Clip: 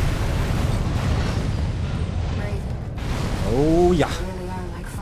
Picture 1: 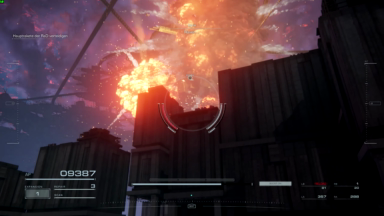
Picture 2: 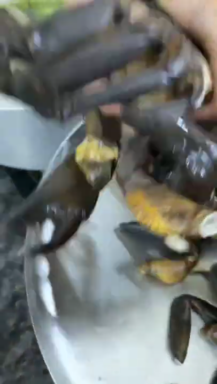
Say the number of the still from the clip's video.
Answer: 1